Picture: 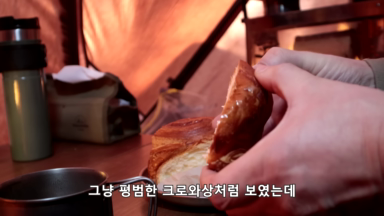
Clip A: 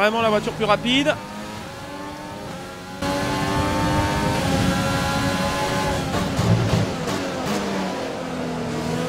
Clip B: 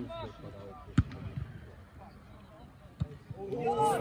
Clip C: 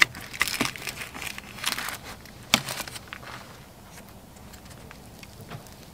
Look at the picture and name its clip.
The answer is C